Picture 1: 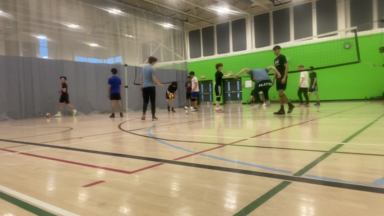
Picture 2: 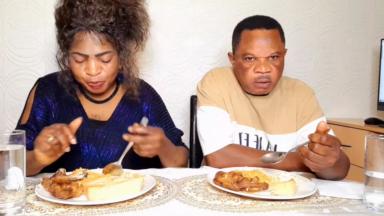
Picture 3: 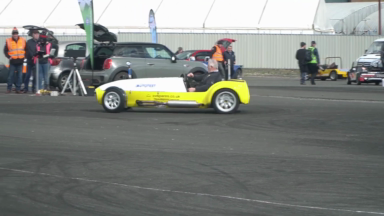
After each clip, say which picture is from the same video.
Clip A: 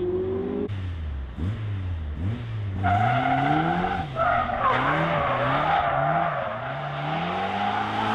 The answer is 3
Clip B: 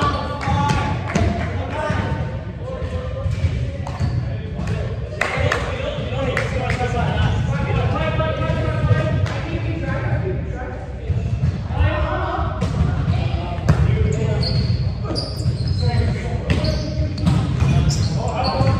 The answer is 1